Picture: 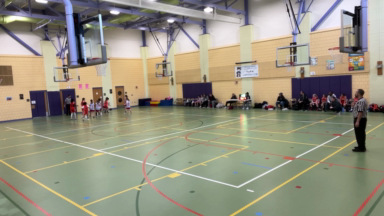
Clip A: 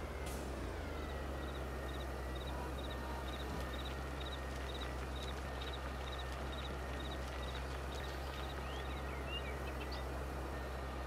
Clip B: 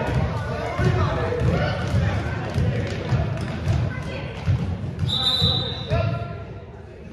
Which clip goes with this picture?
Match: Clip B